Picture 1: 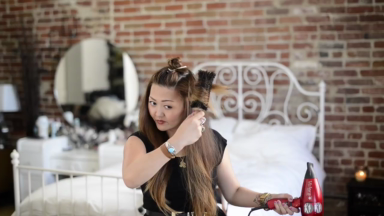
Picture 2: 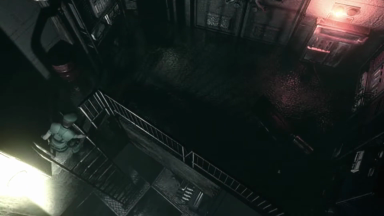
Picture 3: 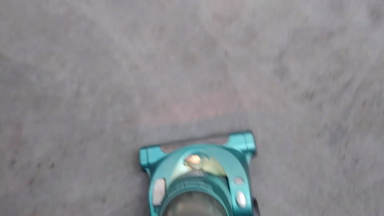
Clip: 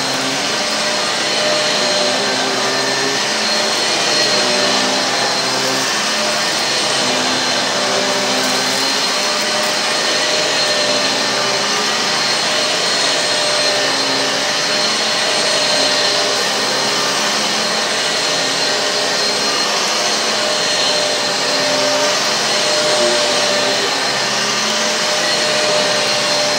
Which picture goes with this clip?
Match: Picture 3